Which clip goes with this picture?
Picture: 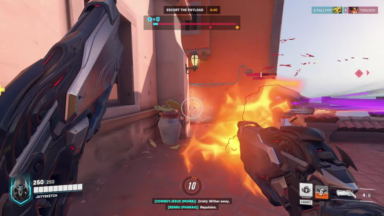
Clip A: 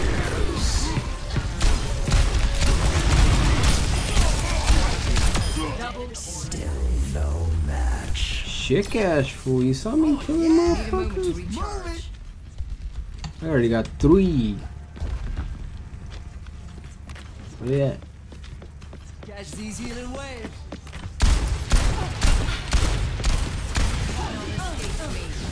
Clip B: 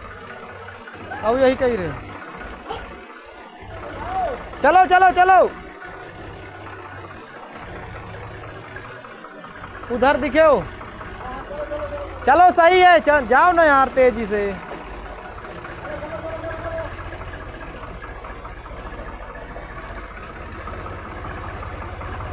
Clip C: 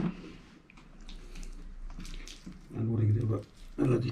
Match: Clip A